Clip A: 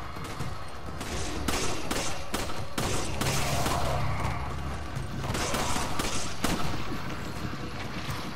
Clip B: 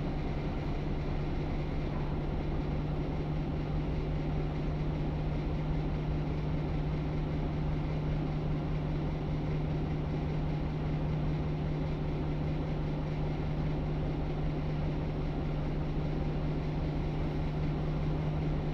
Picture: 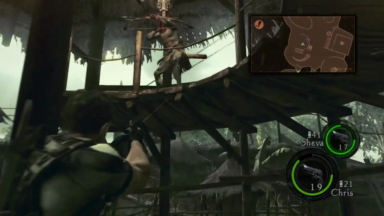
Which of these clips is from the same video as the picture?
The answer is A